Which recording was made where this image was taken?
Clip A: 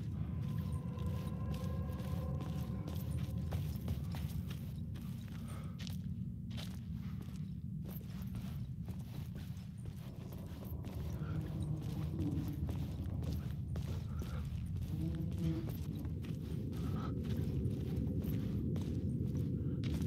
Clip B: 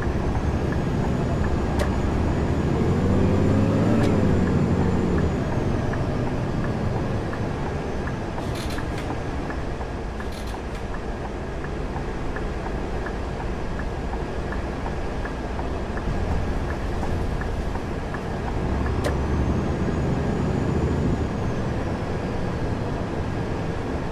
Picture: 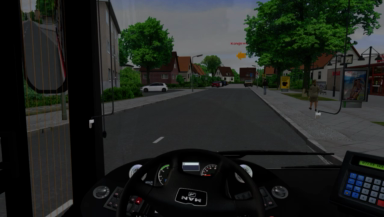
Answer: B